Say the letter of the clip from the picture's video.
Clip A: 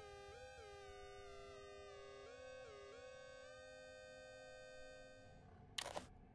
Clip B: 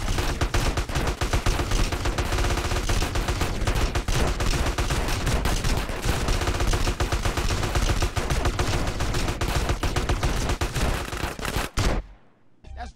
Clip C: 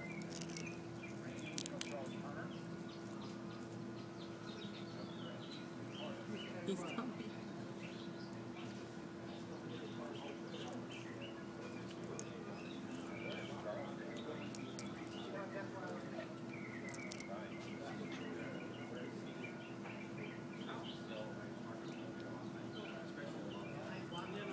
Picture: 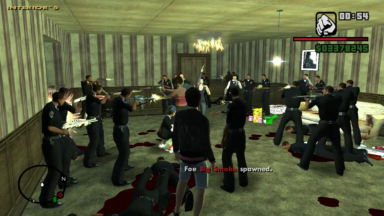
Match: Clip B